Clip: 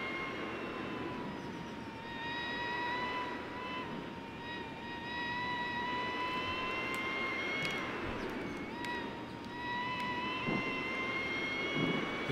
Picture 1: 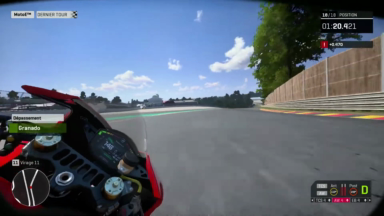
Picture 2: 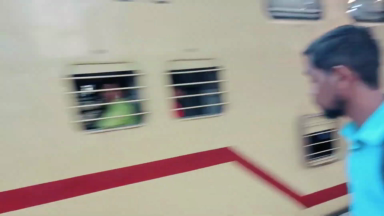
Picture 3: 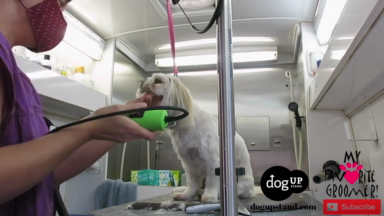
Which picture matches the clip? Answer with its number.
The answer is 1